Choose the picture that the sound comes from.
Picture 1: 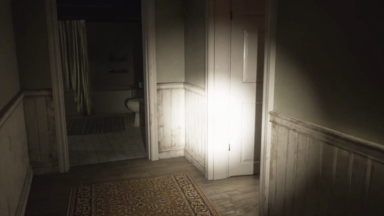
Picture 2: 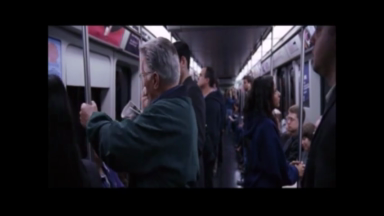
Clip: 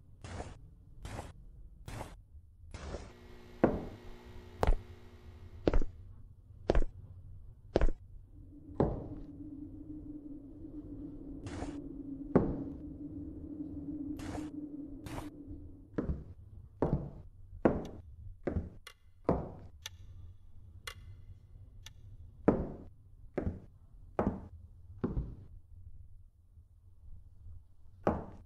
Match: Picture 1